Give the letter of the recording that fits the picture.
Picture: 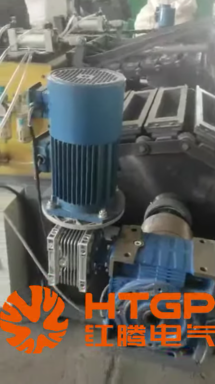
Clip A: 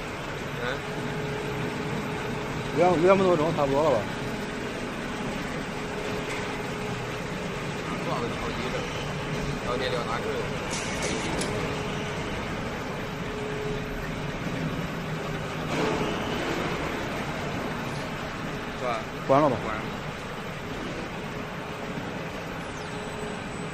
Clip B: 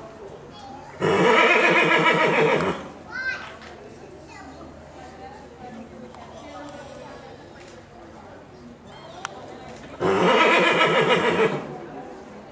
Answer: A